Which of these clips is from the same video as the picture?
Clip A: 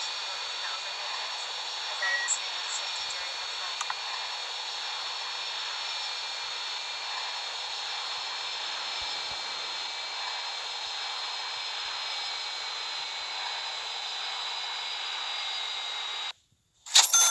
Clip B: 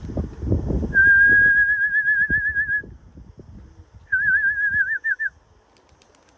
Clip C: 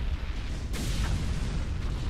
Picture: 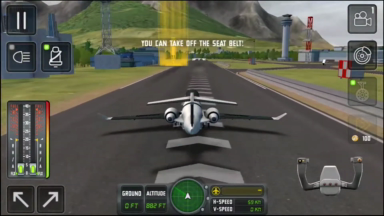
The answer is A